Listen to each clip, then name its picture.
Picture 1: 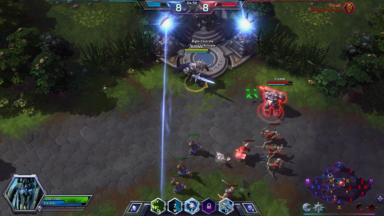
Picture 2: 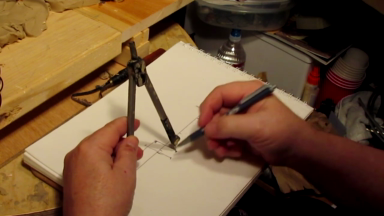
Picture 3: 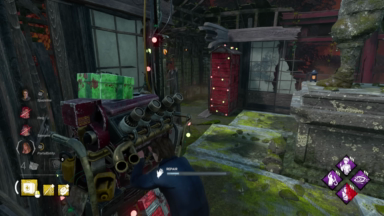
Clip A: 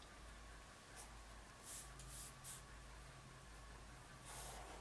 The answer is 2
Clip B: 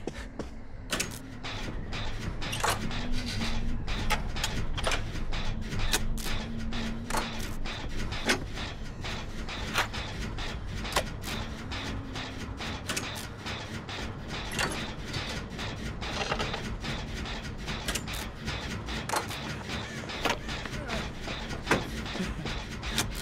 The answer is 3